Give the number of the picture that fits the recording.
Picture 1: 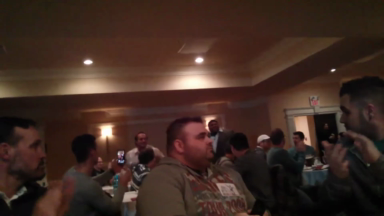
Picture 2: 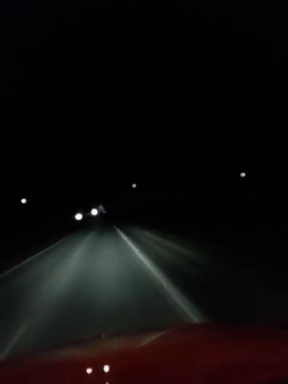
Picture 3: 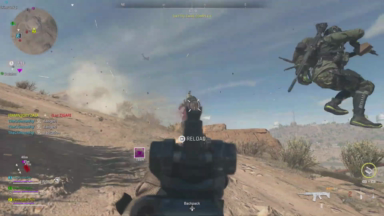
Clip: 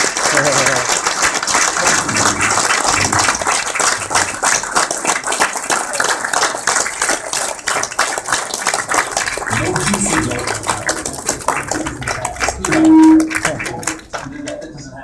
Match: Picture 1